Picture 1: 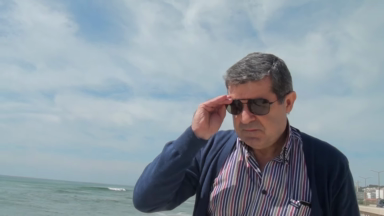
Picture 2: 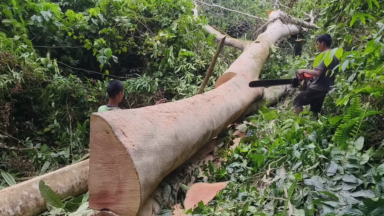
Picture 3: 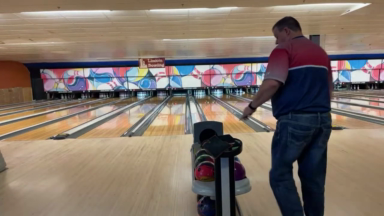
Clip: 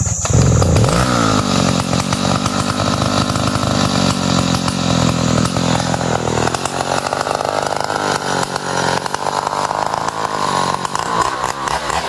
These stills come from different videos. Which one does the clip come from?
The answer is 2